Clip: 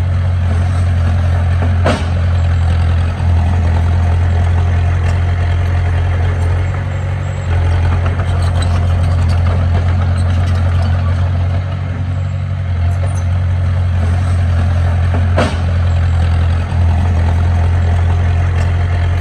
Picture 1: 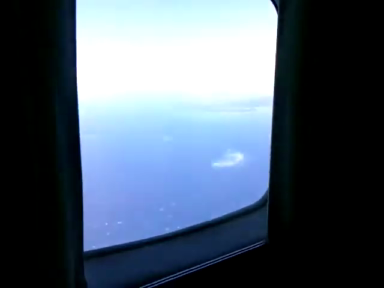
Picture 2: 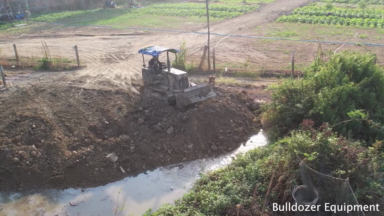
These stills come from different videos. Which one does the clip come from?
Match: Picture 2